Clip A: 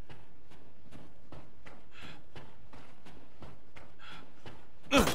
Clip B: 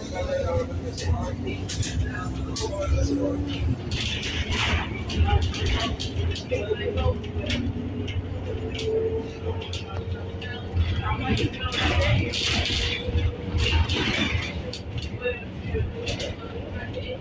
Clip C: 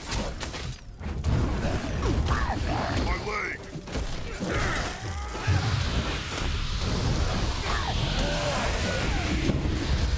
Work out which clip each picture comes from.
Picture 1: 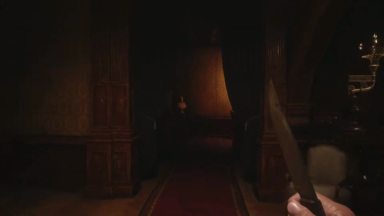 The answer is A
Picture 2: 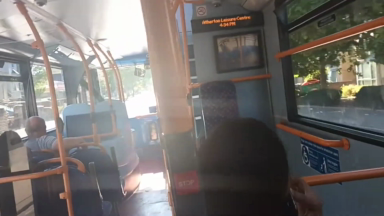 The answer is B